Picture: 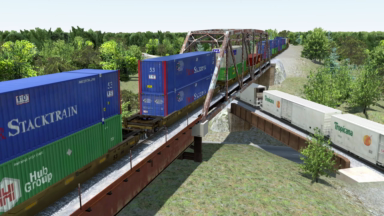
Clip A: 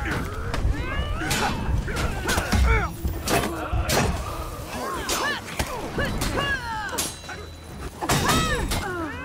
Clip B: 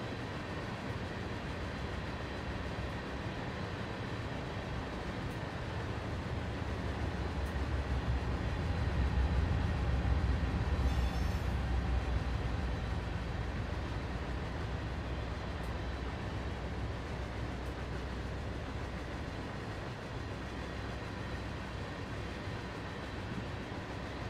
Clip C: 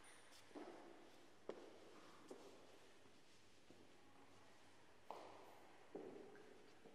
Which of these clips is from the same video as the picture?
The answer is B